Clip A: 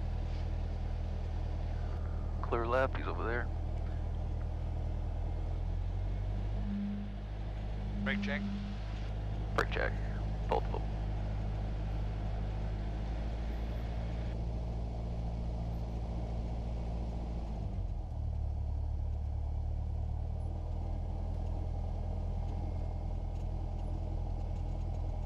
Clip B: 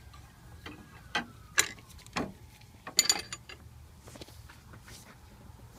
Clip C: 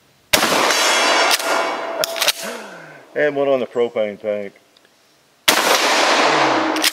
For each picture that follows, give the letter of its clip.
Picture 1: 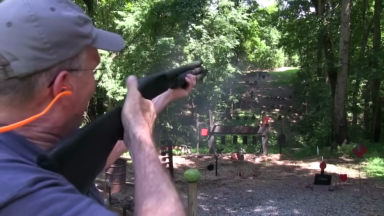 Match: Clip C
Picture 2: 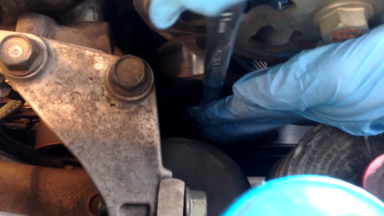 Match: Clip B